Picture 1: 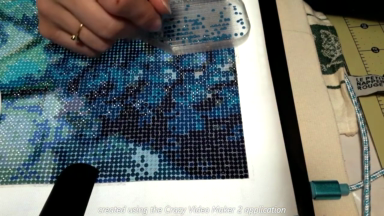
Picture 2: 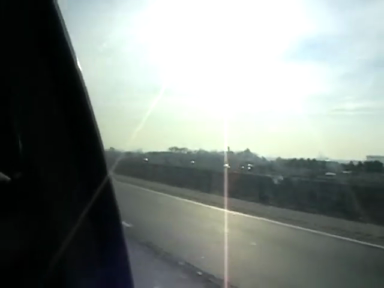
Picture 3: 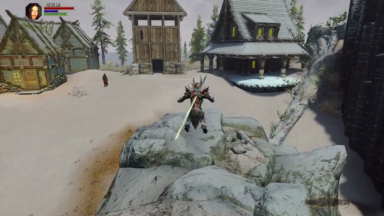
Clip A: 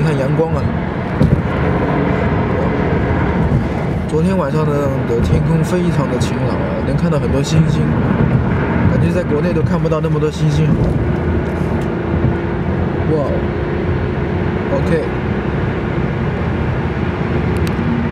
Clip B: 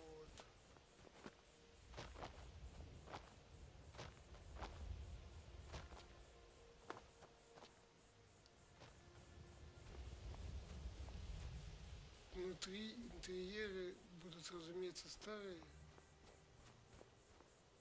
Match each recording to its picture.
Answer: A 2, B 3